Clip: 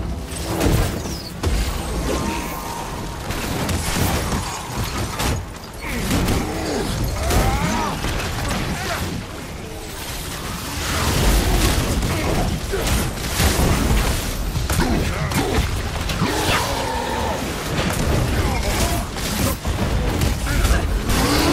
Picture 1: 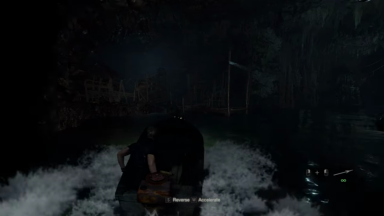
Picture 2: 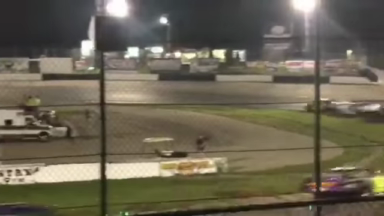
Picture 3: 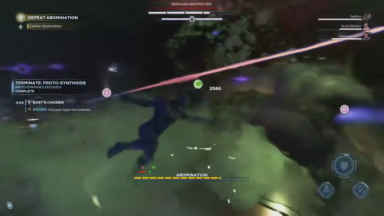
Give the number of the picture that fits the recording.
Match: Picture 3